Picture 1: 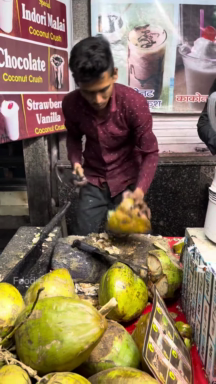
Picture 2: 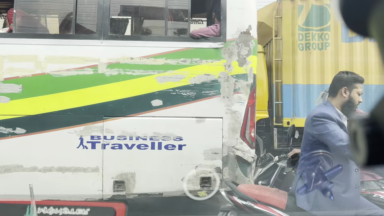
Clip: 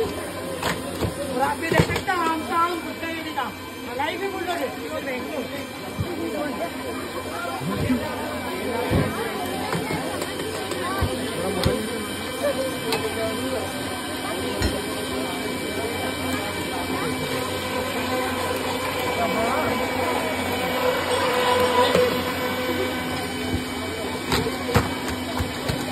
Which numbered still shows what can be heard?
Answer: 1